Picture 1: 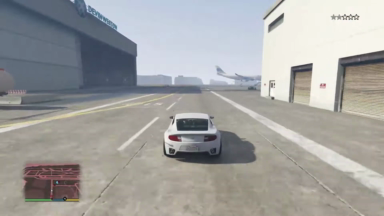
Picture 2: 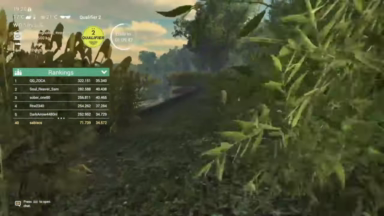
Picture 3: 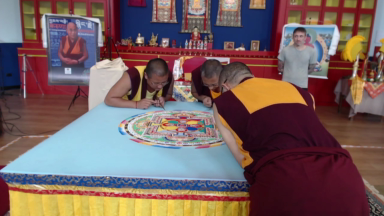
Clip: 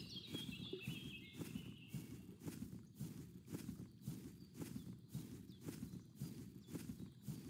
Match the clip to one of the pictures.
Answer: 2